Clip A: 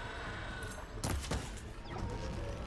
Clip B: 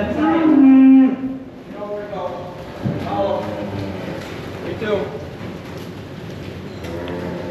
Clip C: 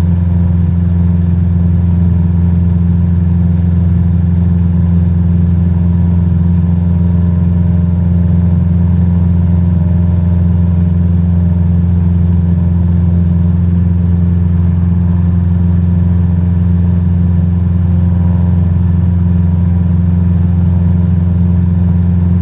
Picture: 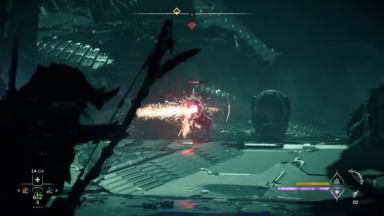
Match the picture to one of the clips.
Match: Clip A